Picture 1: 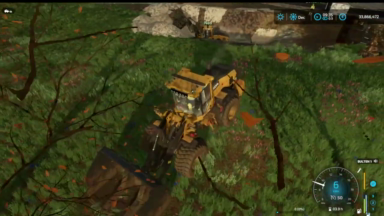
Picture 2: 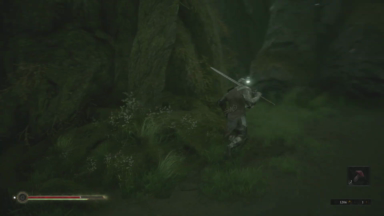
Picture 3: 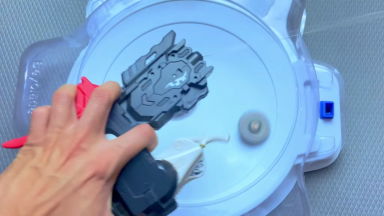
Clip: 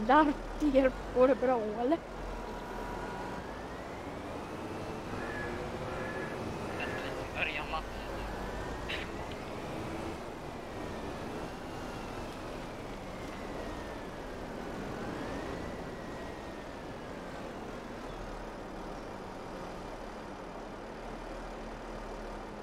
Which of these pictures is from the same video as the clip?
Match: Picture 1